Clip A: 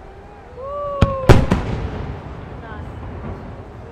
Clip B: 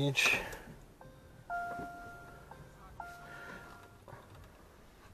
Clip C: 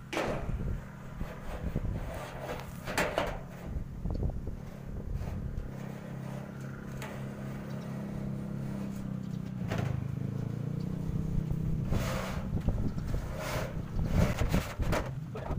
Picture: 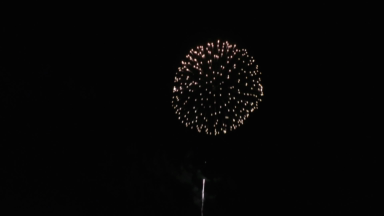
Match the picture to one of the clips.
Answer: A